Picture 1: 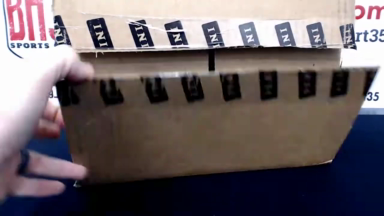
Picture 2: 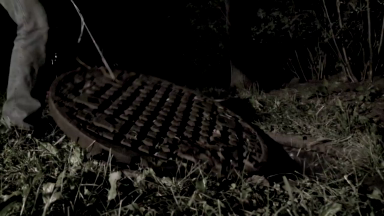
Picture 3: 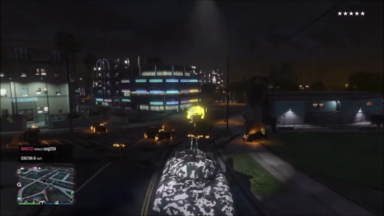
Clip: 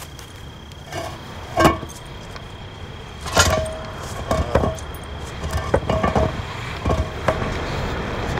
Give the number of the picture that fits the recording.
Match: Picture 2